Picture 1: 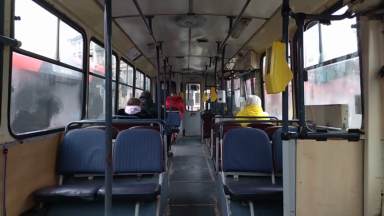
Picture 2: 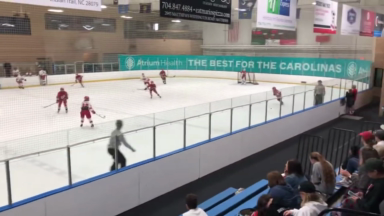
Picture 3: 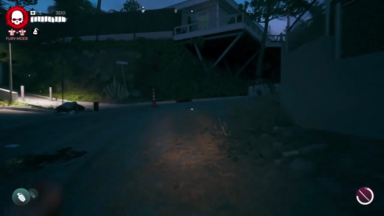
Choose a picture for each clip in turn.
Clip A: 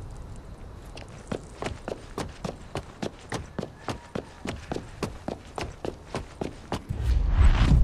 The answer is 3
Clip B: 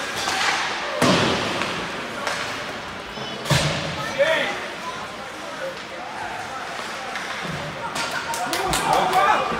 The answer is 2